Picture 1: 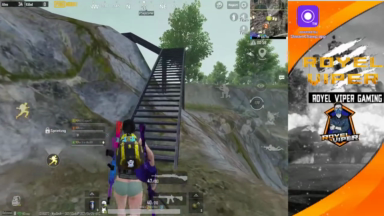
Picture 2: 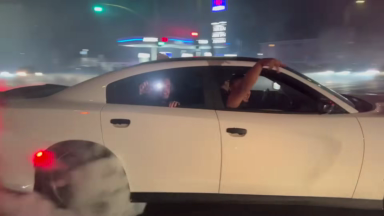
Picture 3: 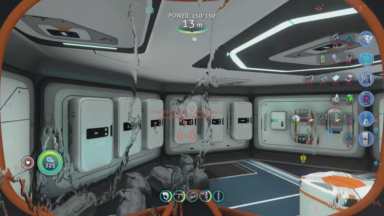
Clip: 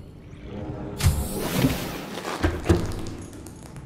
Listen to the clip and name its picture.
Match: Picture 3